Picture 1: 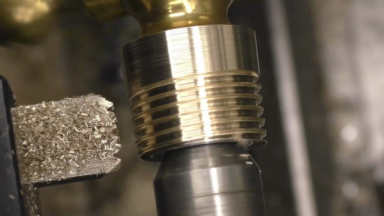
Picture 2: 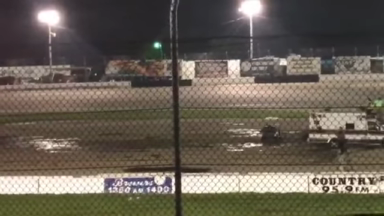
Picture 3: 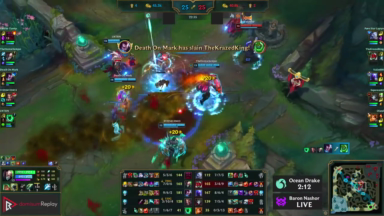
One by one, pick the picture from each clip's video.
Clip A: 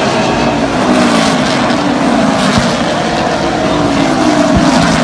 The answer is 2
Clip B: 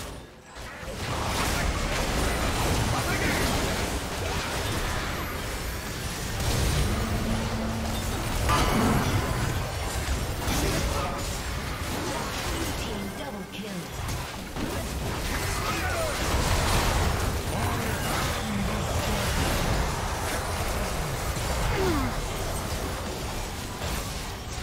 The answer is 3